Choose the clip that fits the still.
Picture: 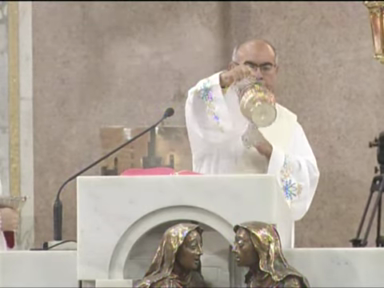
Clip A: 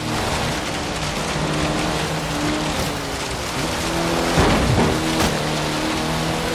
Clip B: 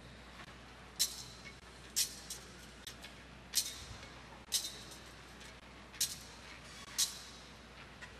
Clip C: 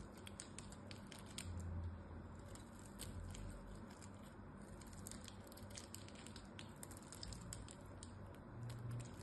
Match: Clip B